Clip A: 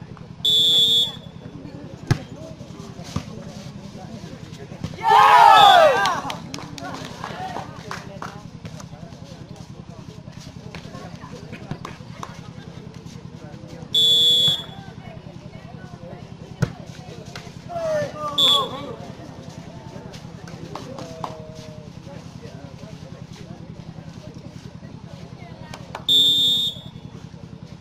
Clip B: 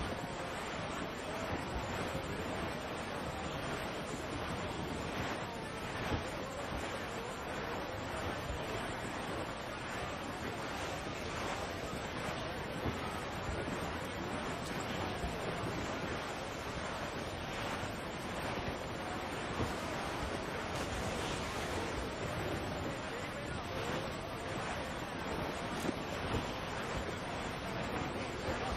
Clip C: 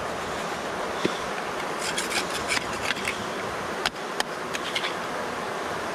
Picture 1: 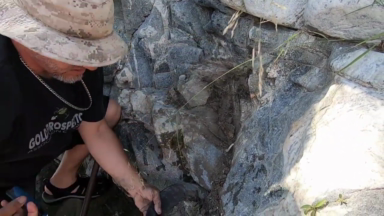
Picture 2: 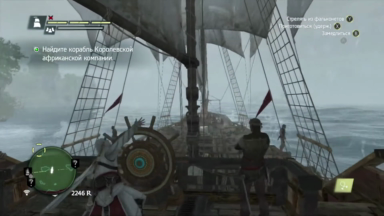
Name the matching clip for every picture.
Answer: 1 C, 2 B